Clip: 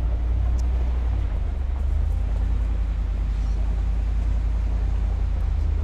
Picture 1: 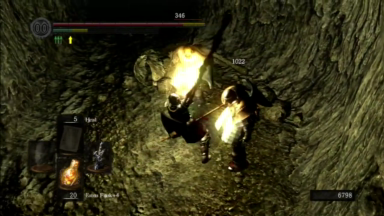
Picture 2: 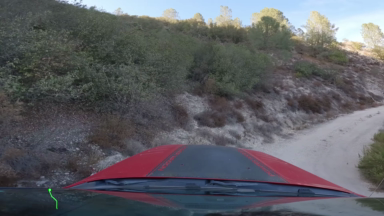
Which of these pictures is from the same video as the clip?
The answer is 2